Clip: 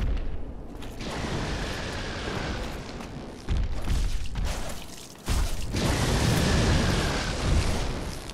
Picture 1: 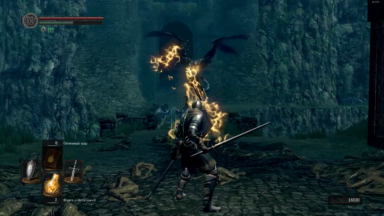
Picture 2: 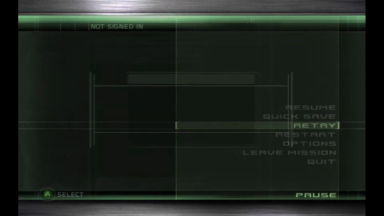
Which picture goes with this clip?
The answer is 1